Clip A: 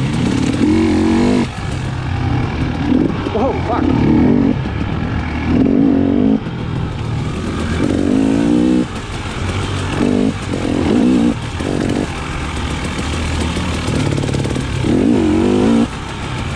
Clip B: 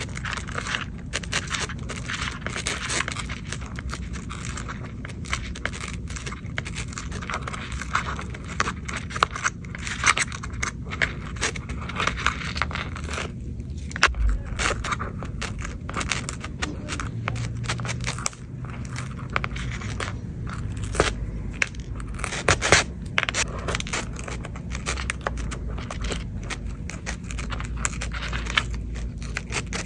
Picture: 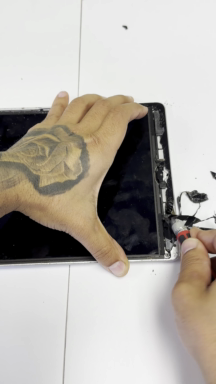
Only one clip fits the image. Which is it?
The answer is B